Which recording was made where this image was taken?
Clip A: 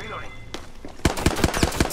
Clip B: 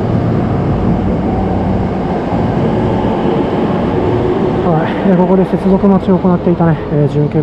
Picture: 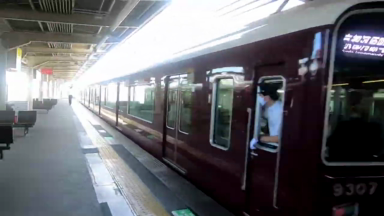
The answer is B